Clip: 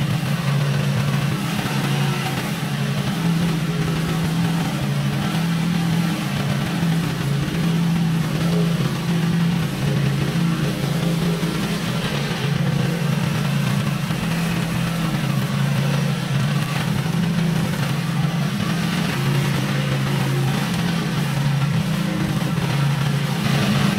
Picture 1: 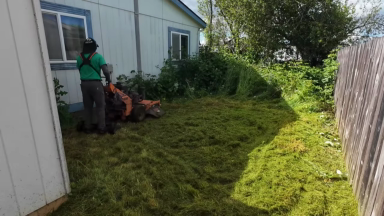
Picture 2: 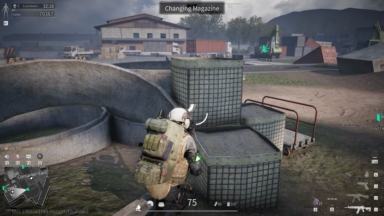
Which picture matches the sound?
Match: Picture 1